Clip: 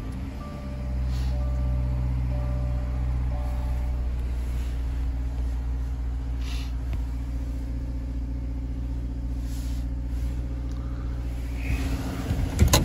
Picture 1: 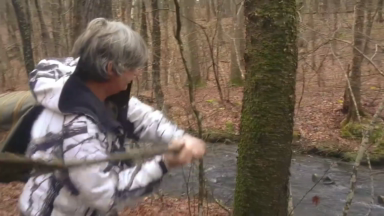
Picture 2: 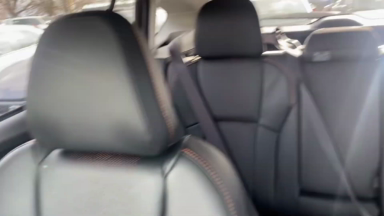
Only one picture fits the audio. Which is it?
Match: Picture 2